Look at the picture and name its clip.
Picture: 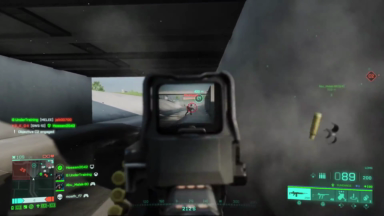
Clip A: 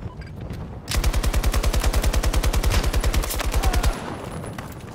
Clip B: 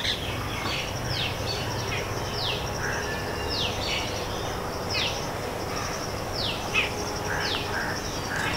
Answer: A